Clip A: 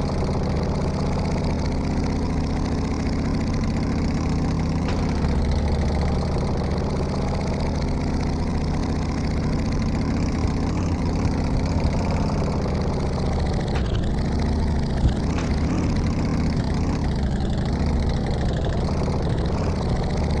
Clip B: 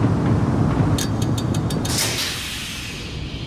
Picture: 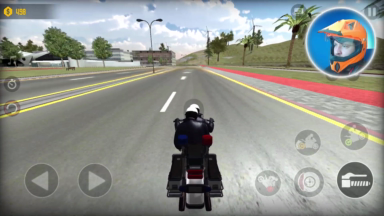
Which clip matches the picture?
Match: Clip A